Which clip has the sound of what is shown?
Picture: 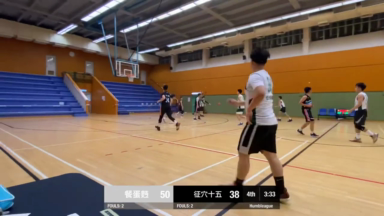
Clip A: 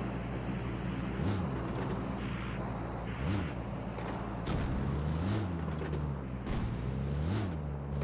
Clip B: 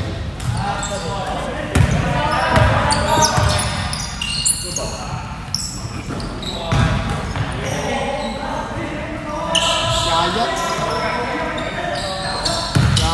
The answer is B